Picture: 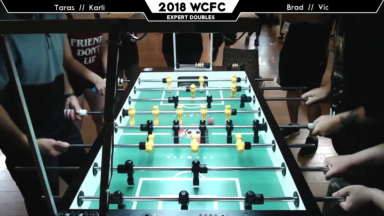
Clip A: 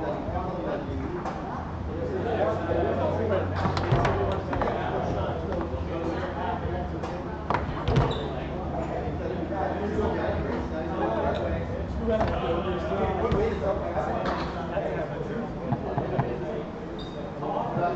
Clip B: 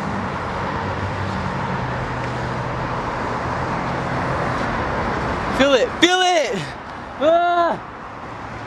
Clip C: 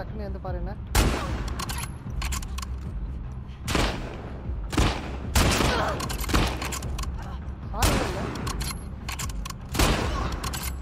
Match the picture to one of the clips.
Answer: A